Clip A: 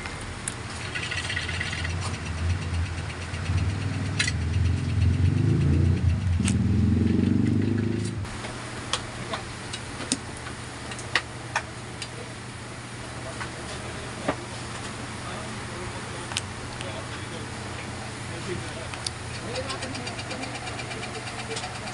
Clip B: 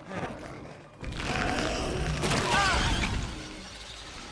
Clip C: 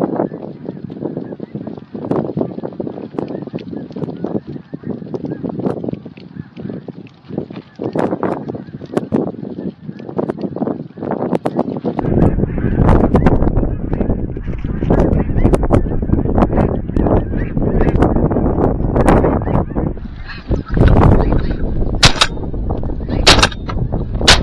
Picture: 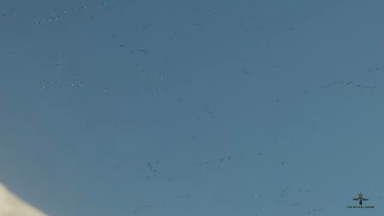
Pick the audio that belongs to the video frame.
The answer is C